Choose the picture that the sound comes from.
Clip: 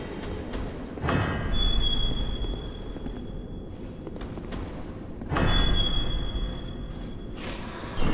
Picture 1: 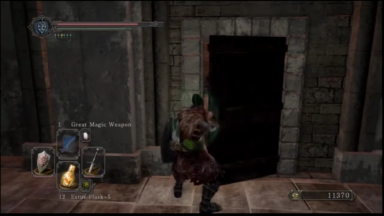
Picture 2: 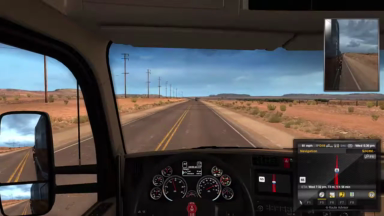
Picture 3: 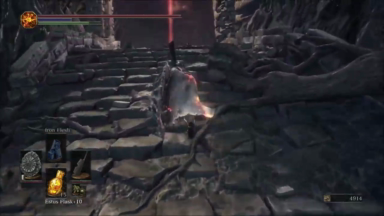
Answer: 1